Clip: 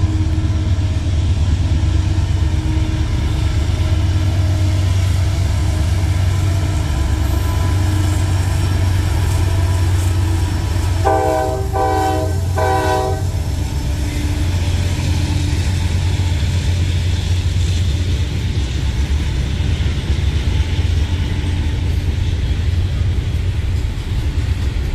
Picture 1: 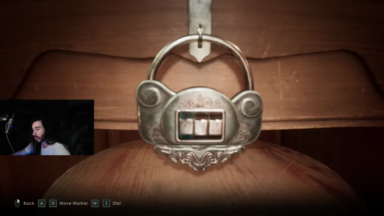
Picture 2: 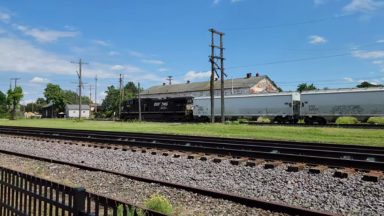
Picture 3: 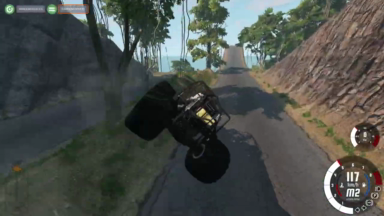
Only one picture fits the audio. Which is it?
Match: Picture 2